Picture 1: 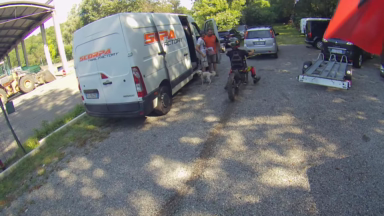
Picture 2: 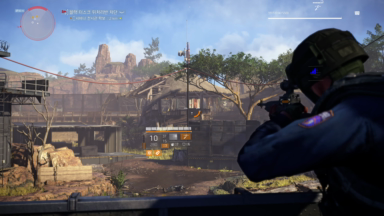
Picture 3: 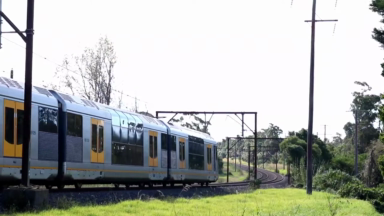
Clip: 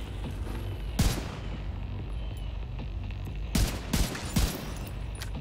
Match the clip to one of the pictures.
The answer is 2